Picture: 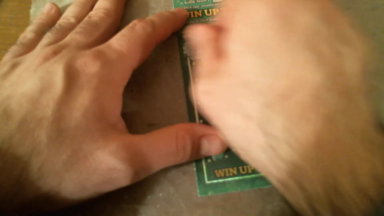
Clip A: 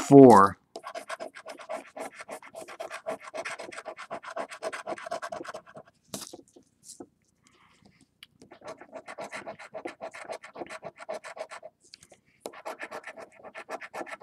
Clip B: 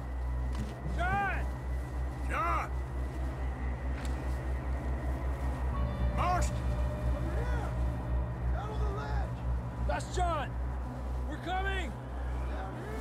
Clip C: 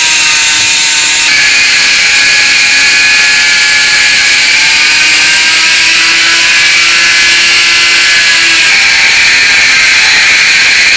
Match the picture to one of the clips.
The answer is A